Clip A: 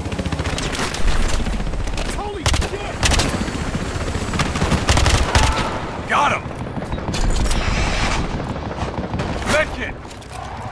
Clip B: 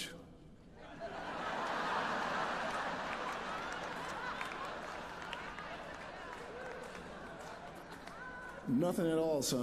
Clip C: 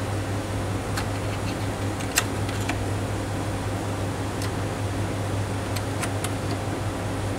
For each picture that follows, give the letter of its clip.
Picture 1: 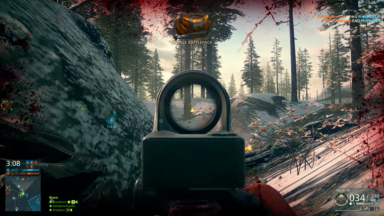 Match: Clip A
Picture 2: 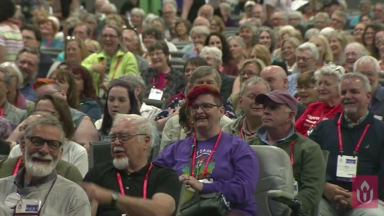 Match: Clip B